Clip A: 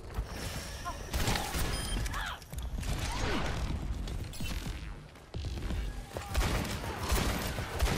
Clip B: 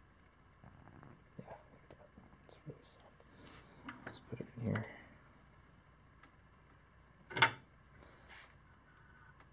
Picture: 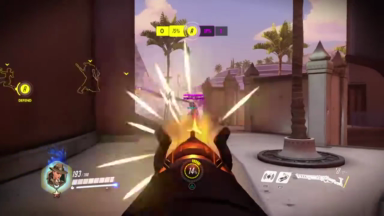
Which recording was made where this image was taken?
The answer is A